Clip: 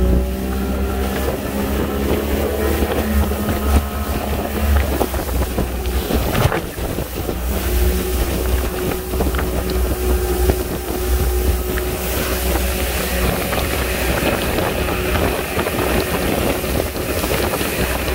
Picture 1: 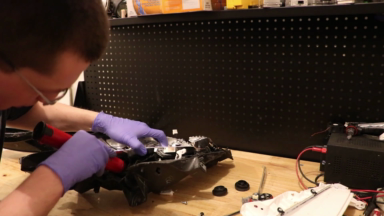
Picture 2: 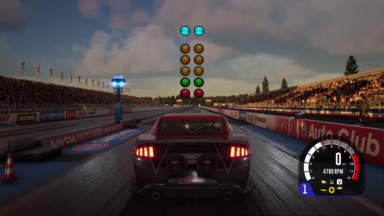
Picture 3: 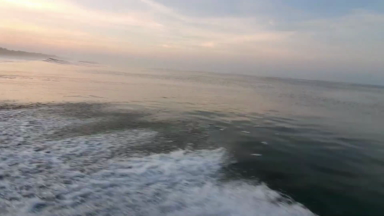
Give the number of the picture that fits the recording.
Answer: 3